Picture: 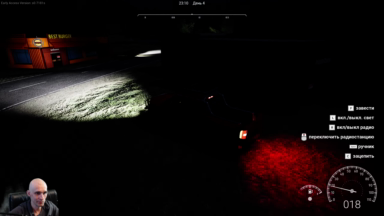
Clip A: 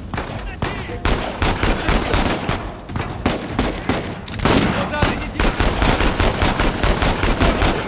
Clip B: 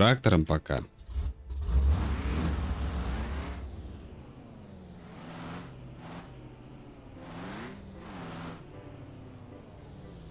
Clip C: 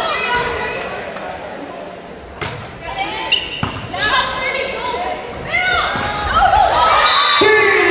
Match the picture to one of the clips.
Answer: B